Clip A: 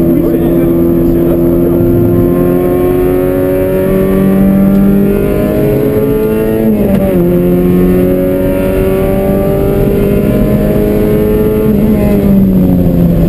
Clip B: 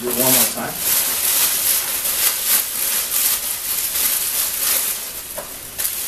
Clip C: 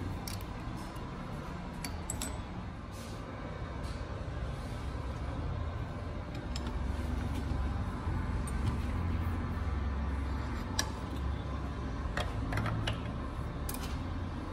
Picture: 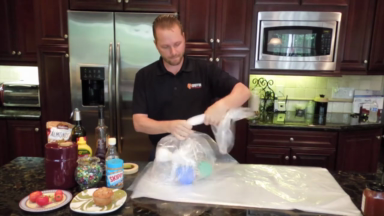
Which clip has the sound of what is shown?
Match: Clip B